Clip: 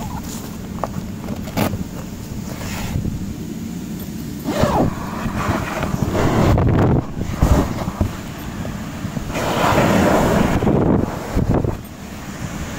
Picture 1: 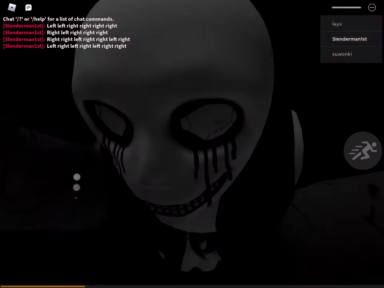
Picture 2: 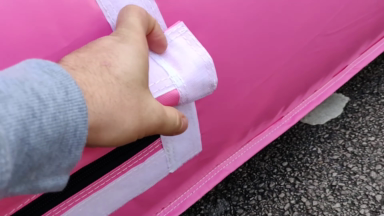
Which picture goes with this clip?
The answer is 2